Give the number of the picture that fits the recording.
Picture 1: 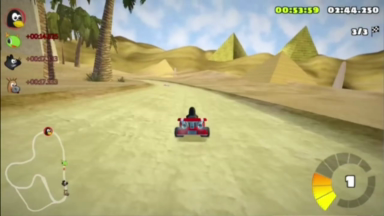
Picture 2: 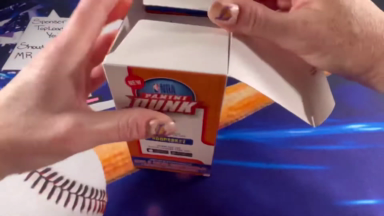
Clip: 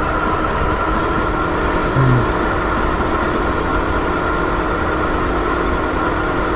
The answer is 1